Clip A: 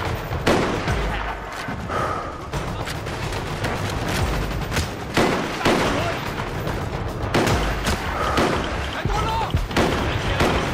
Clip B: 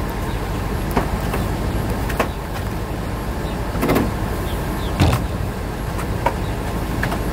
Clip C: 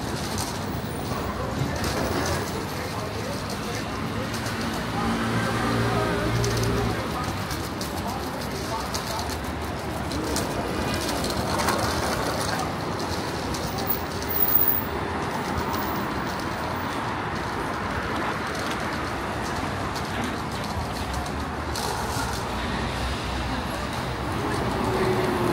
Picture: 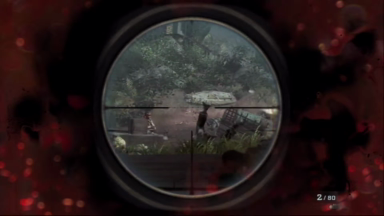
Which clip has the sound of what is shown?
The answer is A